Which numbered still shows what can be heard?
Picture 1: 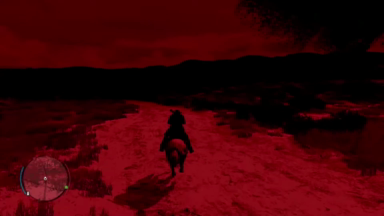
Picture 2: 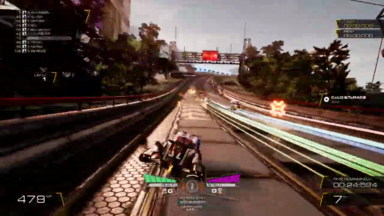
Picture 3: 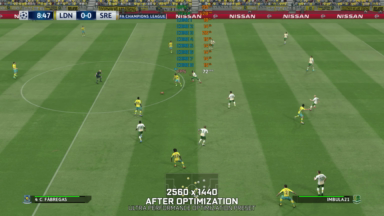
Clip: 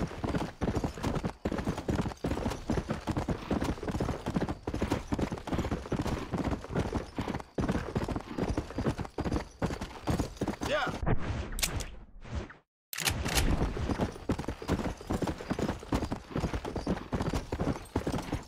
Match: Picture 1